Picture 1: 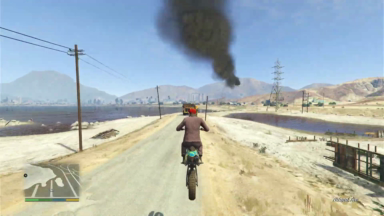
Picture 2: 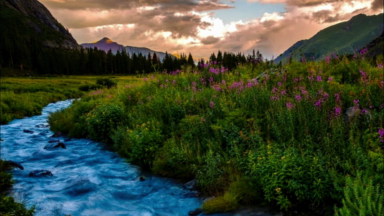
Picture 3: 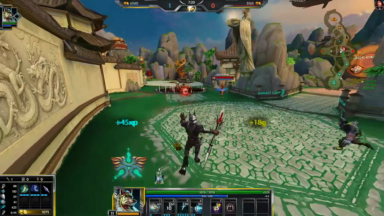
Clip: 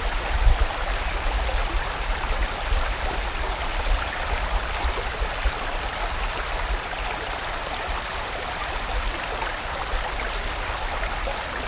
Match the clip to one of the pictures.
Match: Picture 2